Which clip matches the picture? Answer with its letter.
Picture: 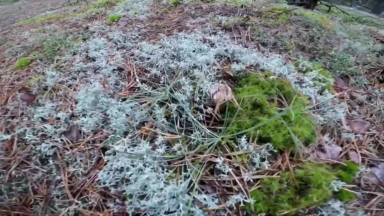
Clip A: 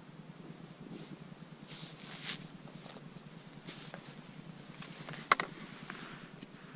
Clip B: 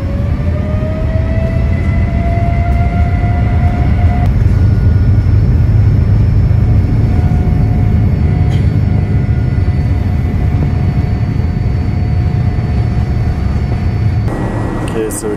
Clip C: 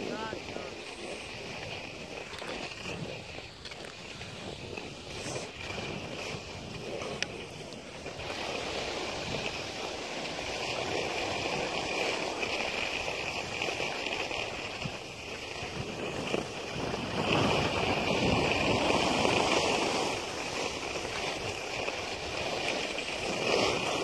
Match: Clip A